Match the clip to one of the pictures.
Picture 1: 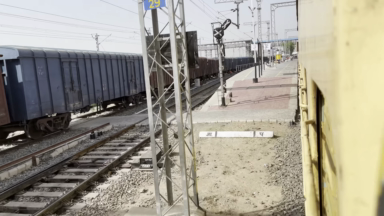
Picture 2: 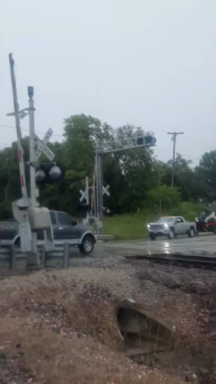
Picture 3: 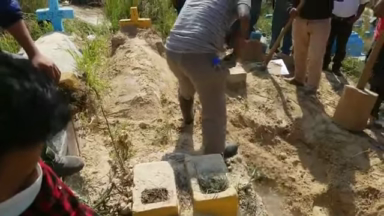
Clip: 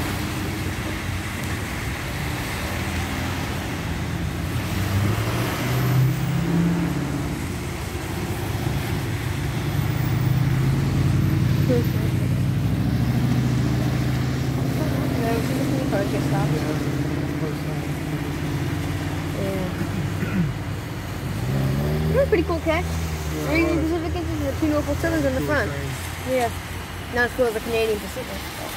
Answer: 2